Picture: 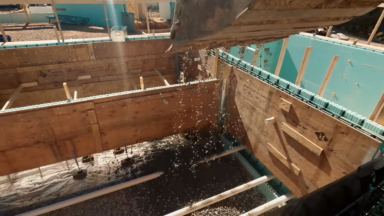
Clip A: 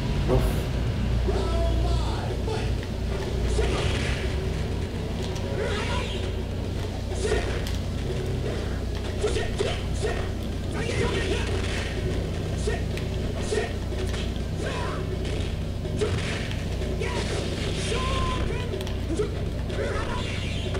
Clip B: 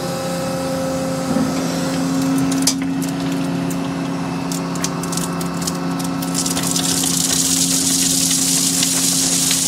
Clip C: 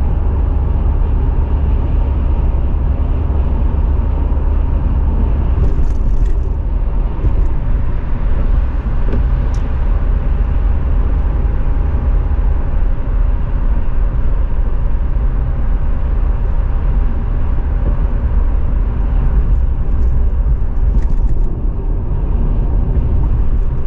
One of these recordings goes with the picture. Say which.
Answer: B